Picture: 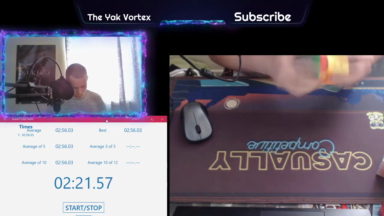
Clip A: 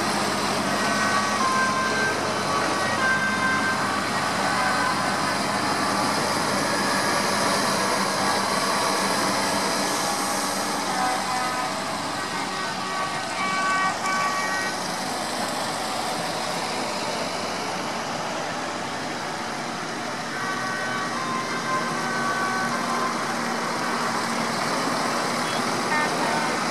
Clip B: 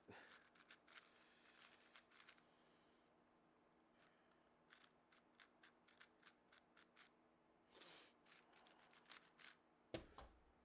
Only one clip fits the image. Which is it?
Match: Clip B